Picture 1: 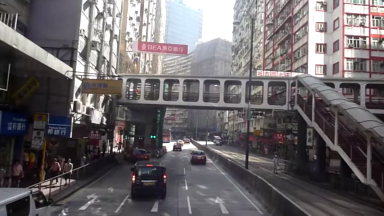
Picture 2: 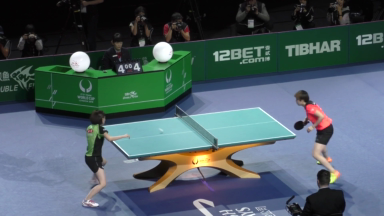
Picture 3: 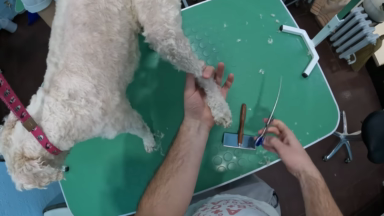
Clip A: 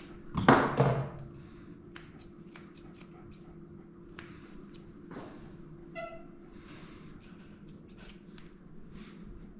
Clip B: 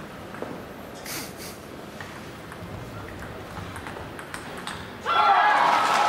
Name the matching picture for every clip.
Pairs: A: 3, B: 2